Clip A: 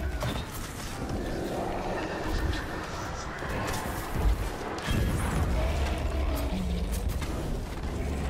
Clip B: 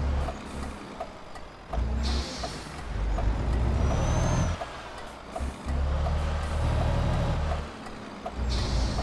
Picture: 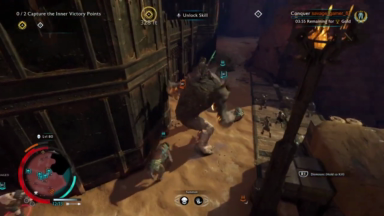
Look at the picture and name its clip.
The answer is A